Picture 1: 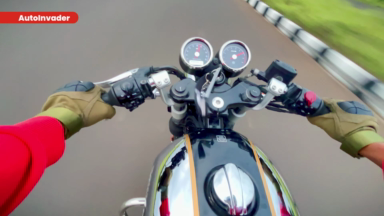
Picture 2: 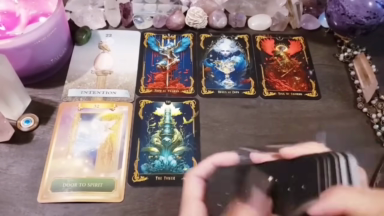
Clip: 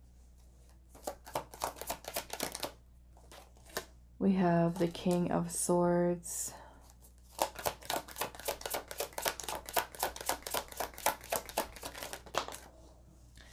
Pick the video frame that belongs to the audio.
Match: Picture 2